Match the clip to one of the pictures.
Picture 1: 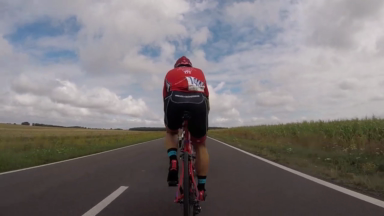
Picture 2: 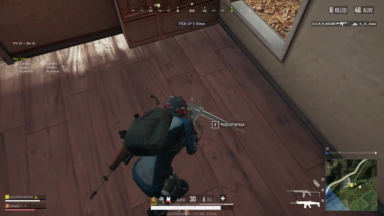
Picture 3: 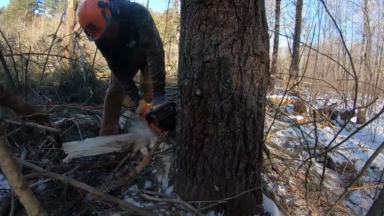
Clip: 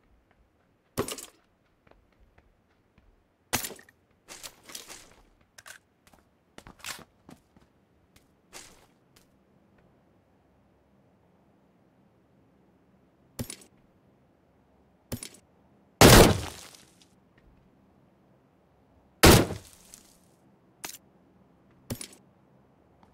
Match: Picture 2